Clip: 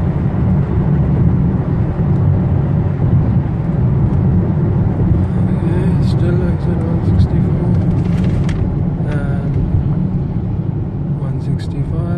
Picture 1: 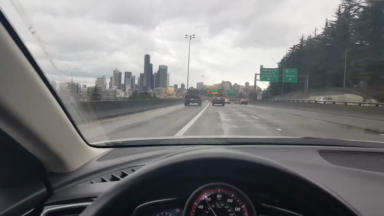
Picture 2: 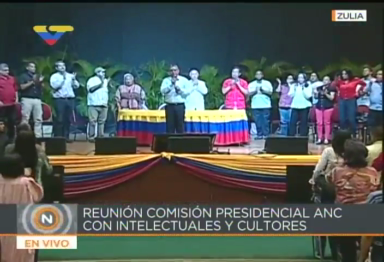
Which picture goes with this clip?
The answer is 1